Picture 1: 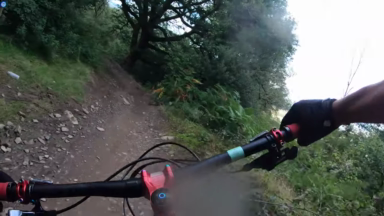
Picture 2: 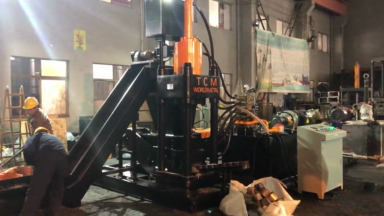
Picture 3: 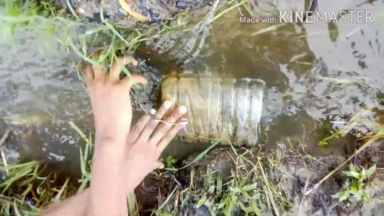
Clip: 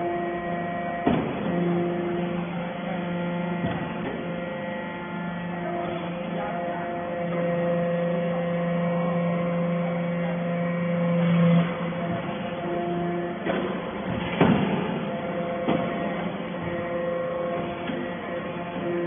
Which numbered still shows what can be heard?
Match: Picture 2